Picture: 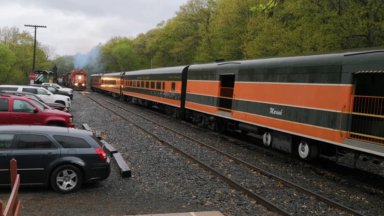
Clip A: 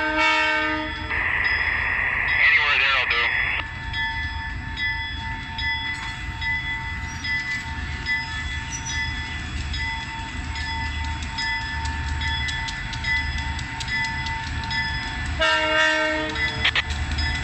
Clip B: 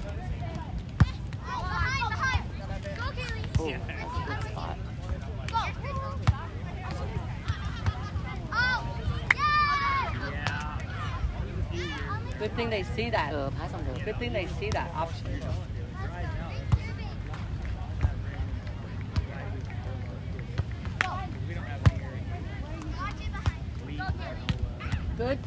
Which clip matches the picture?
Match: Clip A